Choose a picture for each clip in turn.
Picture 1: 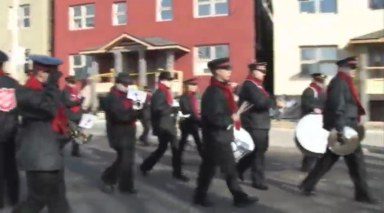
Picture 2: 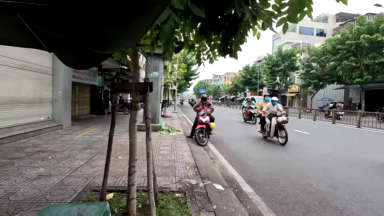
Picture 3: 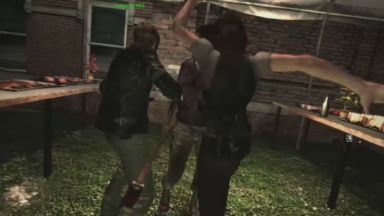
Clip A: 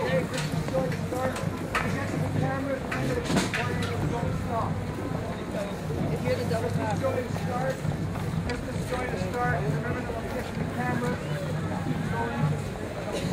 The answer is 1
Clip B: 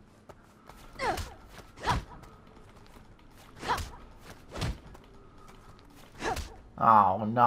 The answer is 3